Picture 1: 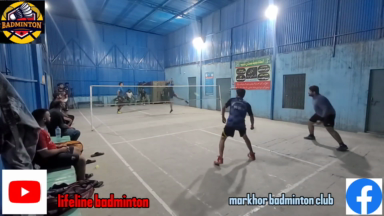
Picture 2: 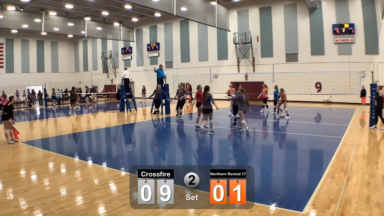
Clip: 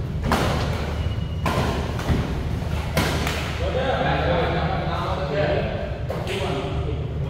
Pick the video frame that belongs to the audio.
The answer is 1